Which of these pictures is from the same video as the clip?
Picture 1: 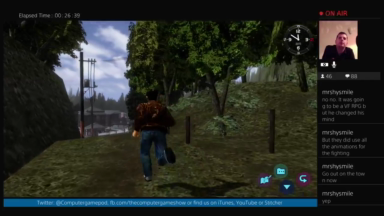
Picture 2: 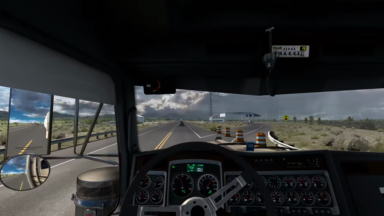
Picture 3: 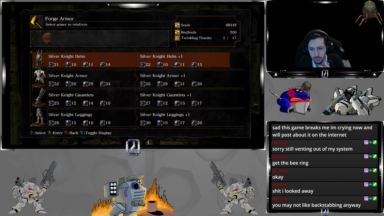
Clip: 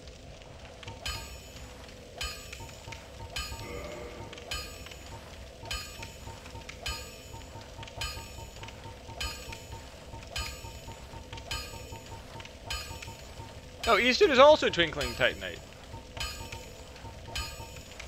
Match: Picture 3